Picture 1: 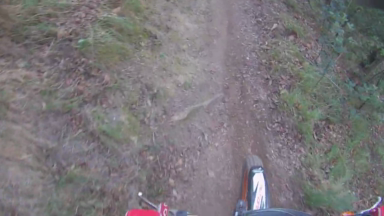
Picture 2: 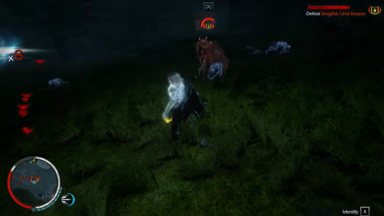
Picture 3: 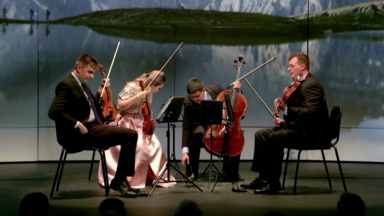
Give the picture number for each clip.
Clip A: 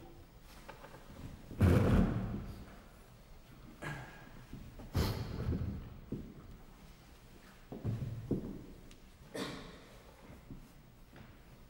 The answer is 3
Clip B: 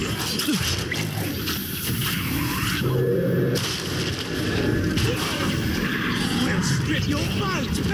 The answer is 2